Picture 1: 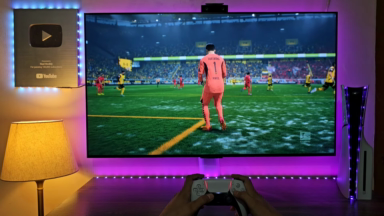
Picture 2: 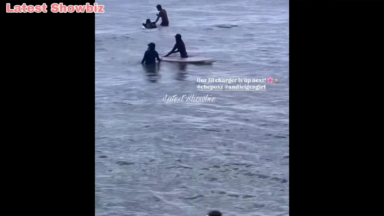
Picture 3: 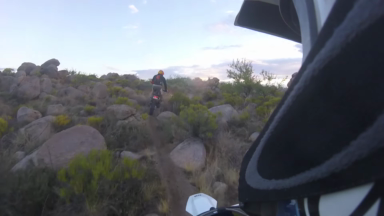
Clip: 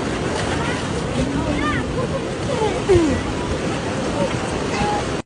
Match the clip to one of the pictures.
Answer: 2